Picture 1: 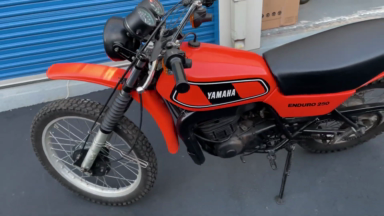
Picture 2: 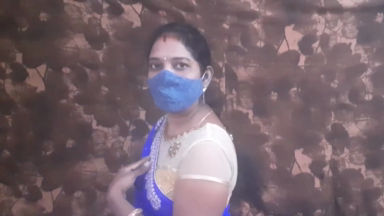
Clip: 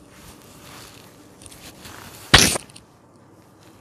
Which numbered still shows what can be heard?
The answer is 2